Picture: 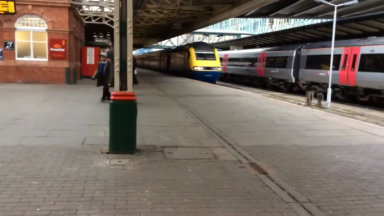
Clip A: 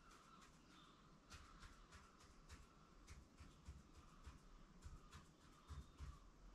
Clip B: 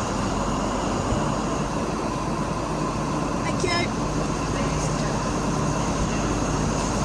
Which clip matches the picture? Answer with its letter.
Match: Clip B